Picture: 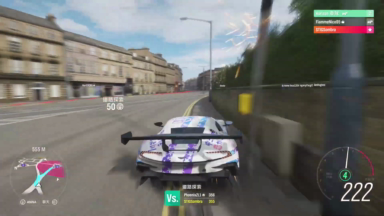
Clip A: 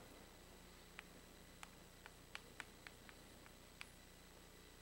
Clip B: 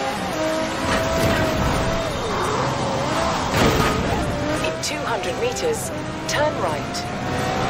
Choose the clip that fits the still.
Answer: B